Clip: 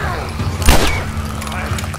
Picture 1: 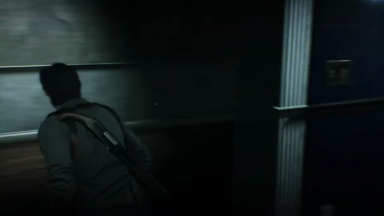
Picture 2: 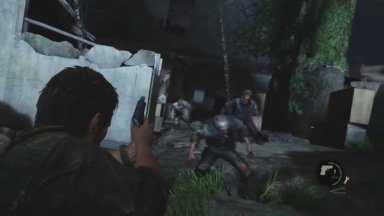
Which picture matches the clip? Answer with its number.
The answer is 2